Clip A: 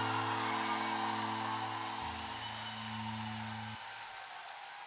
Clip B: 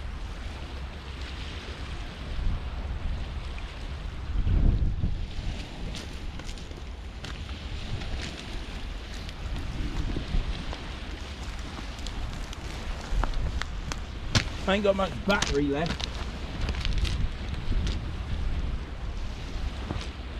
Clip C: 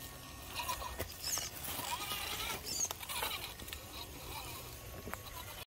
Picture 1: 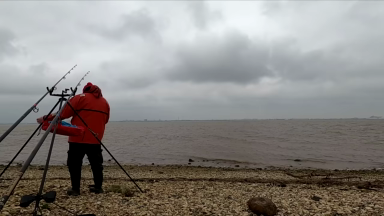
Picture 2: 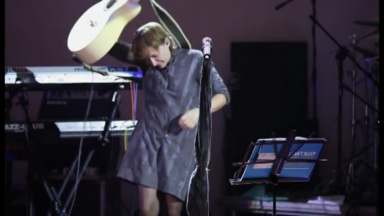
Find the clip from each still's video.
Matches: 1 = B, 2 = A